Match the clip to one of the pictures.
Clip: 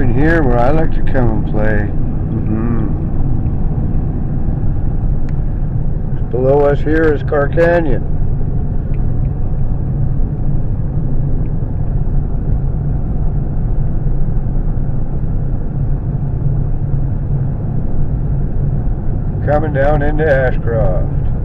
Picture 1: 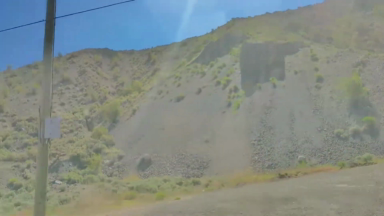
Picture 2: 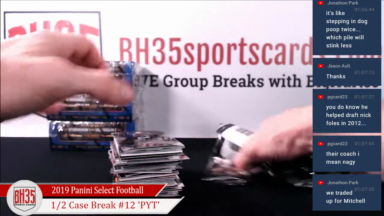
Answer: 1